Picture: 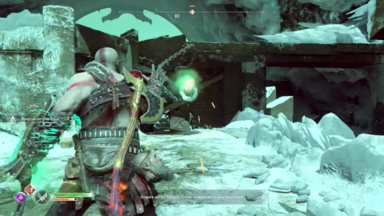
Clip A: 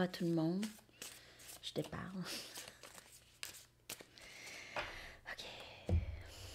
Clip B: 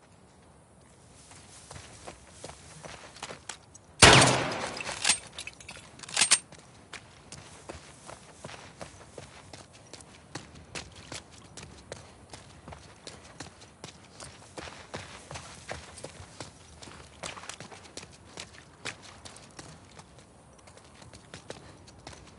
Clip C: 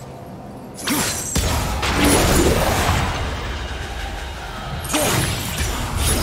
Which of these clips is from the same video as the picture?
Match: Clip C